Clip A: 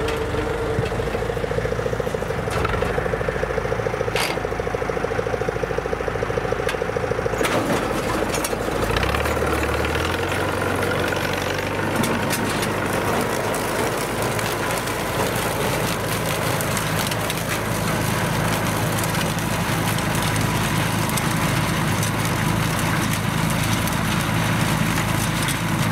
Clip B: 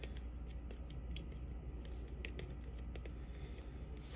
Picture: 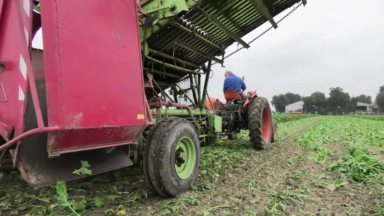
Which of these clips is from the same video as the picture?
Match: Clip A